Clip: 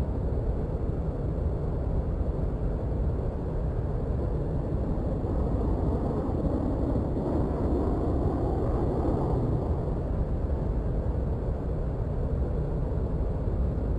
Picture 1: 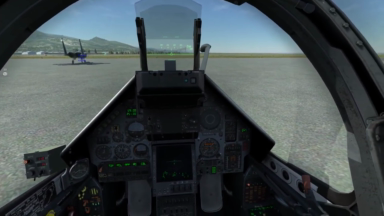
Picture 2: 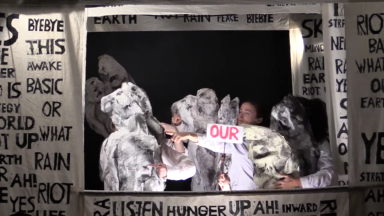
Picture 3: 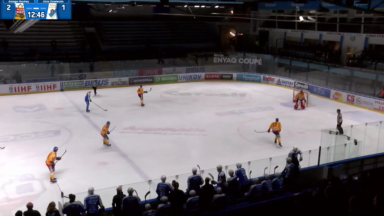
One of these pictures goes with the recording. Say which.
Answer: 1